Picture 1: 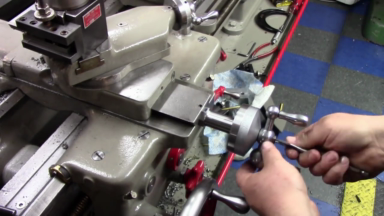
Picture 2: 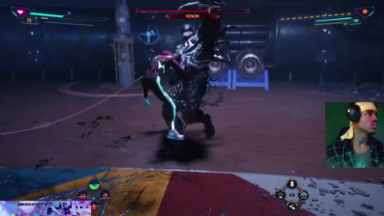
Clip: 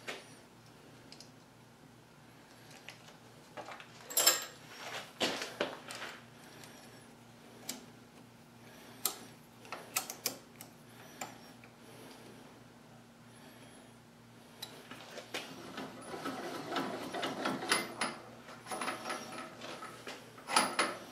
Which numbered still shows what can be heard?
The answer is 1